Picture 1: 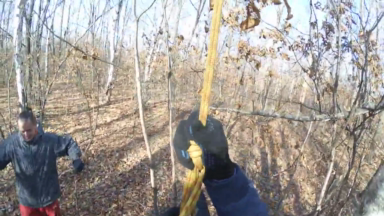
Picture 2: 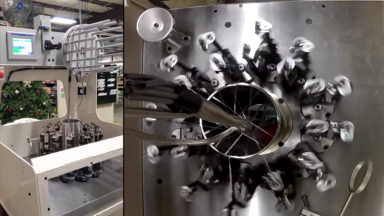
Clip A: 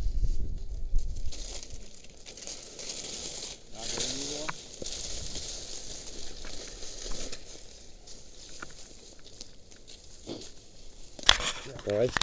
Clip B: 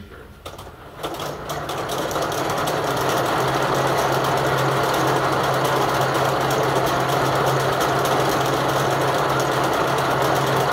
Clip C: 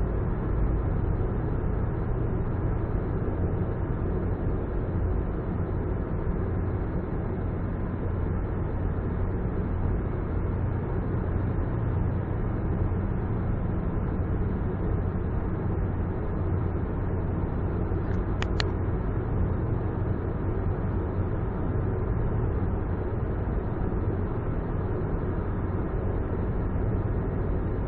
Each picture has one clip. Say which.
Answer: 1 A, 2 B